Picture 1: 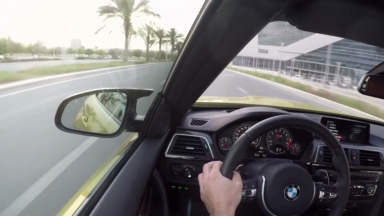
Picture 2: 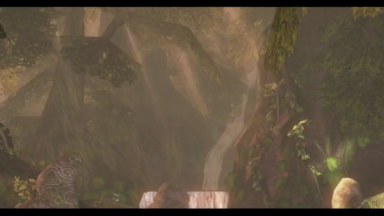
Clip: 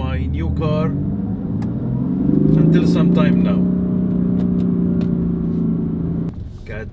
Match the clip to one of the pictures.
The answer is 1